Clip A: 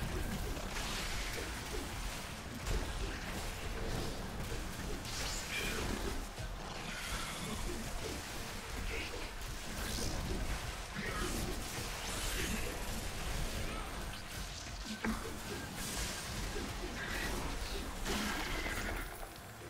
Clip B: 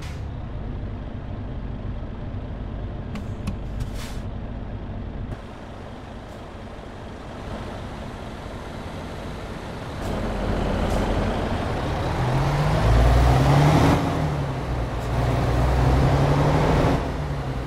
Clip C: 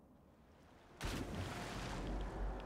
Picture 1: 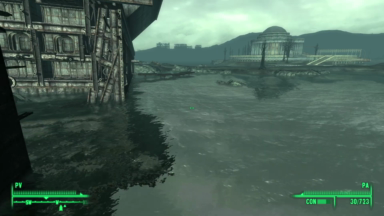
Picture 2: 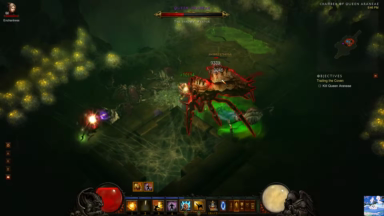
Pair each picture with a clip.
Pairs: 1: C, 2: A